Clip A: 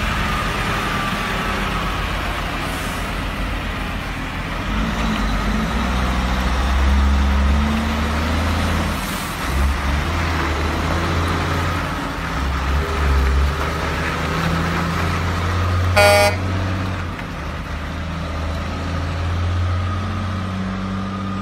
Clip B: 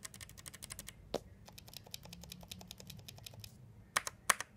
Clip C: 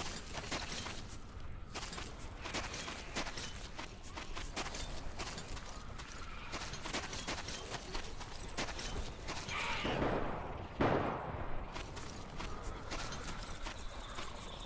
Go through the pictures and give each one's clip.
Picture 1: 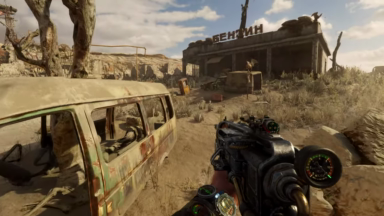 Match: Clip C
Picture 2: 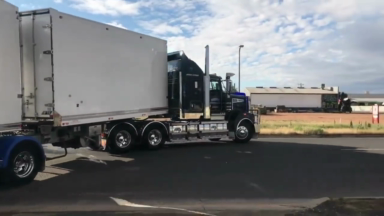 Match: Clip A